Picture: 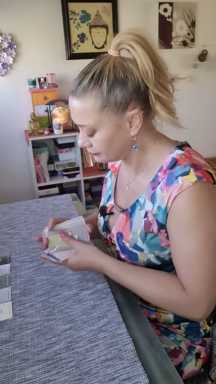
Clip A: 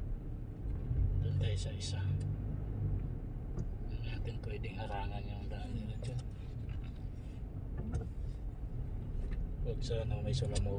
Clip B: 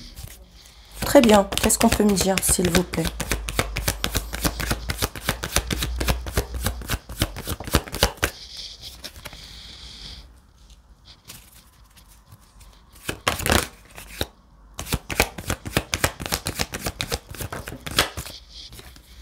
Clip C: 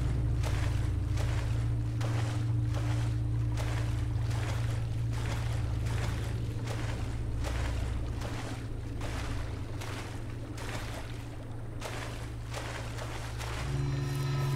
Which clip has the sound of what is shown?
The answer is B